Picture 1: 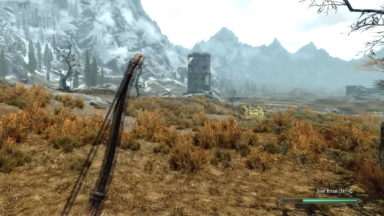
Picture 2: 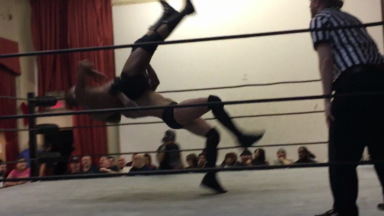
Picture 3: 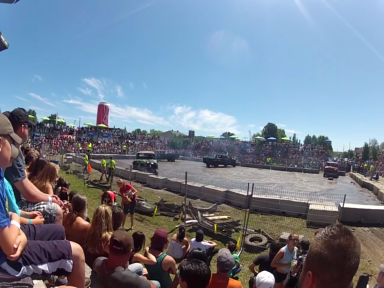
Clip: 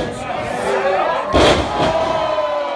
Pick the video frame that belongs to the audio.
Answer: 2